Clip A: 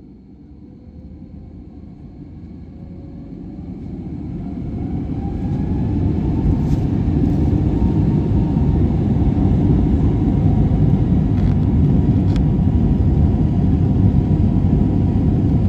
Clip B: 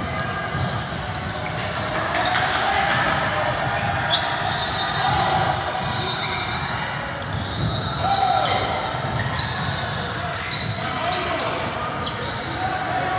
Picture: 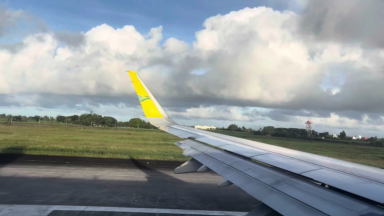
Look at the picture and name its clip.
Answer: A